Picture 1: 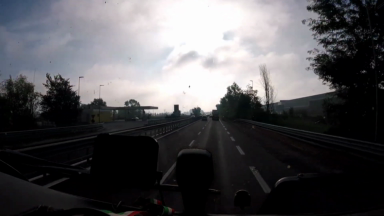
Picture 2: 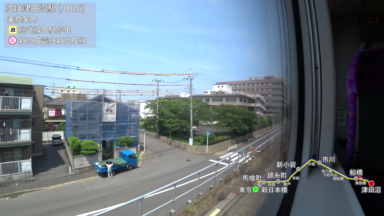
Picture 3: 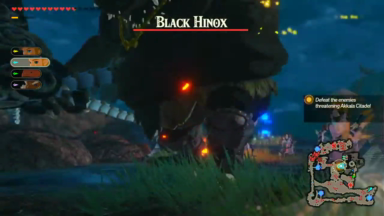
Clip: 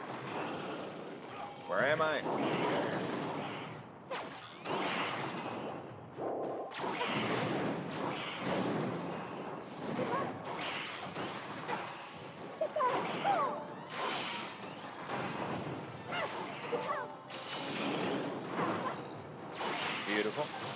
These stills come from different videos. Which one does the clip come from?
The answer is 3